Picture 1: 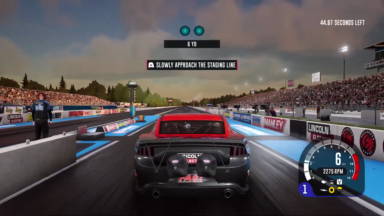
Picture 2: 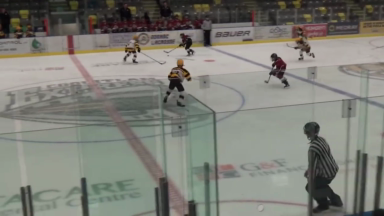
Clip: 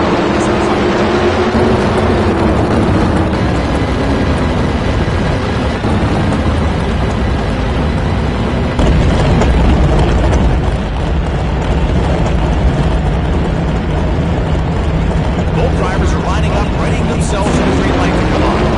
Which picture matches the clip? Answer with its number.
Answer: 1